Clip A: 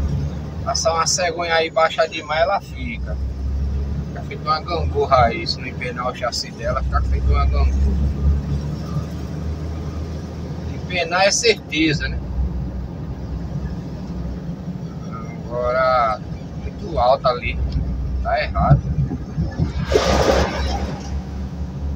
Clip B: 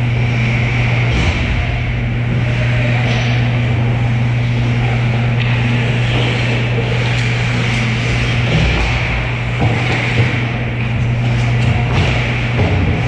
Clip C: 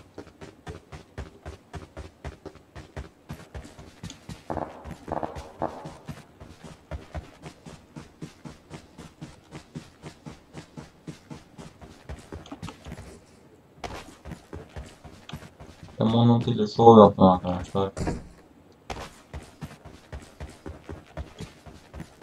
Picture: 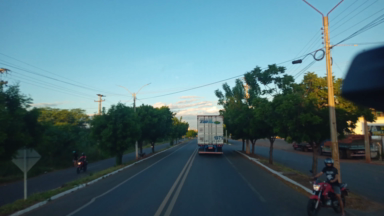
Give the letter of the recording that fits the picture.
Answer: A